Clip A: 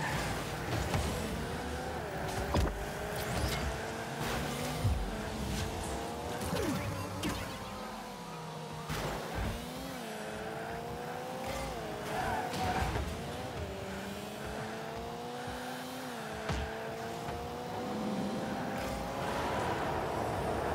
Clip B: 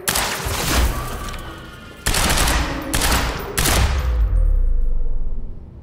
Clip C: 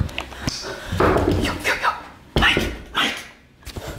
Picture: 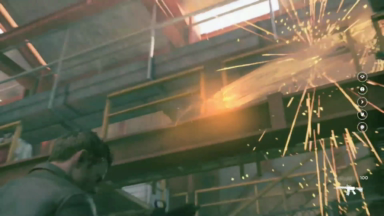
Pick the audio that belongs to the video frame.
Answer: B